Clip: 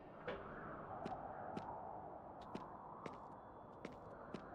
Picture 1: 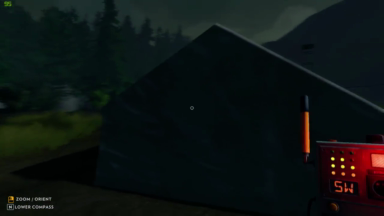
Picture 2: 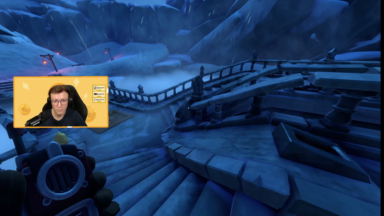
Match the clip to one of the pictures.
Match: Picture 2